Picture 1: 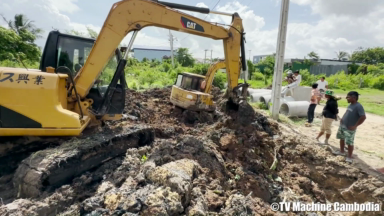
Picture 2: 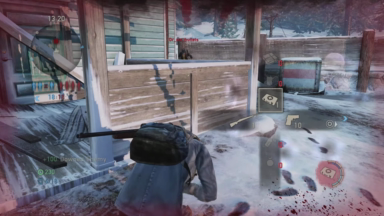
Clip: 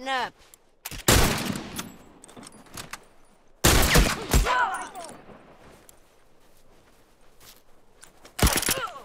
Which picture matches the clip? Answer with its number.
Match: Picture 2